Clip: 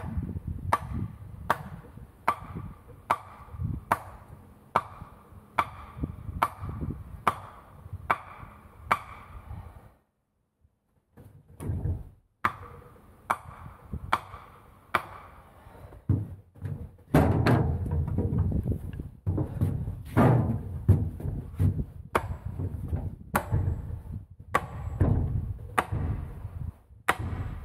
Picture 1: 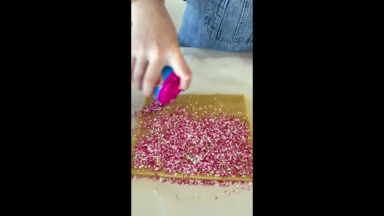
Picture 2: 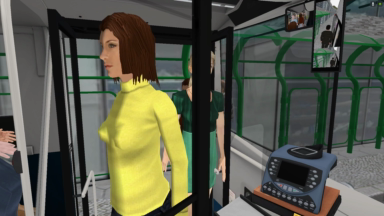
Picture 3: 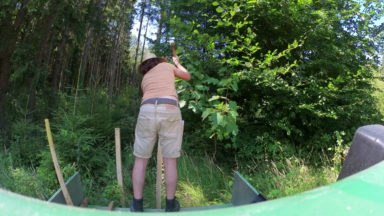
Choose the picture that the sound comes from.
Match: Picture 3